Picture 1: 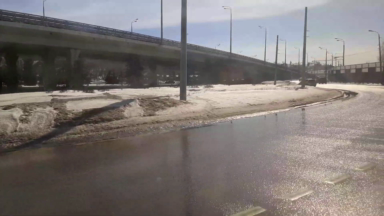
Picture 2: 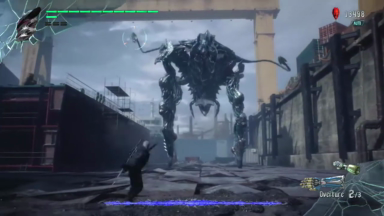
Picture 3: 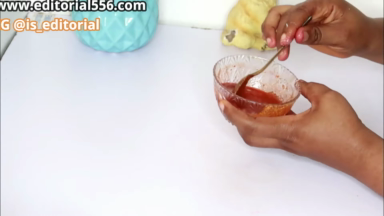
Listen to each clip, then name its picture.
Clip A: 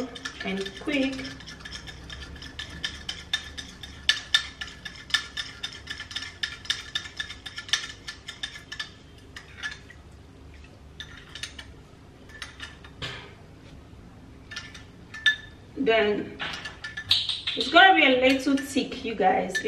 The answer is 3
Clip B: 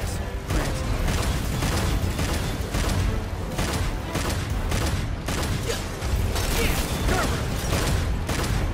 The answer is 2